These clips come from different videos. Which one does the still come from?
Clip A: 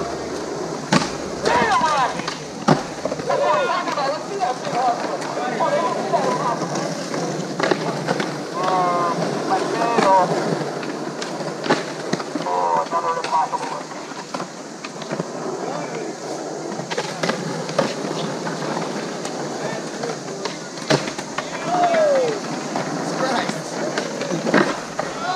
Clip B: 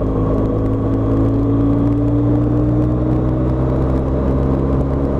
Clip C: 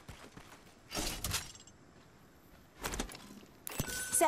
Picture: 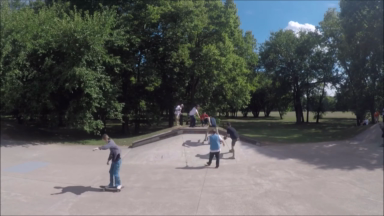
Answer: A